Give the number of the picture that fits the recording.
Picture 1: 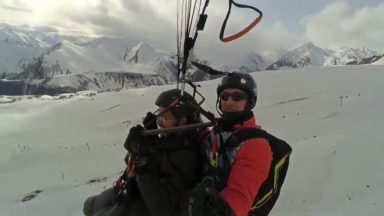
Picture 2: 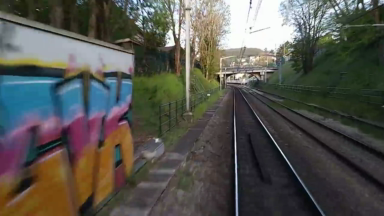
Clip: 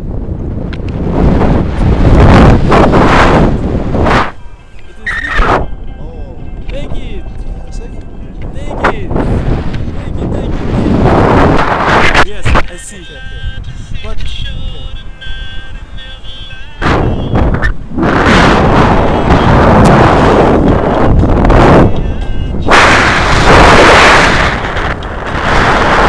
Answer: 1